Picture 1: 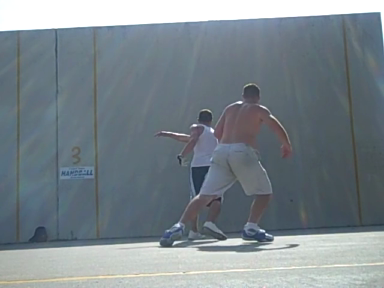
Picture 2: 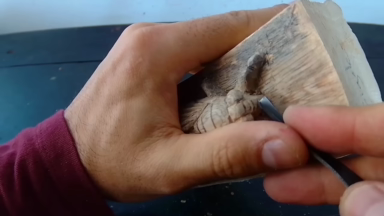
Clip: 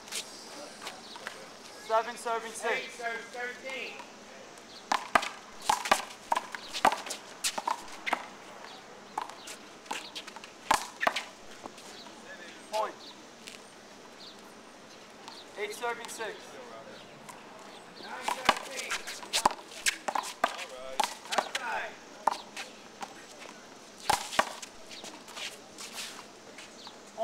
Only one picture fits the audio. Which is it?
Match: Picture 1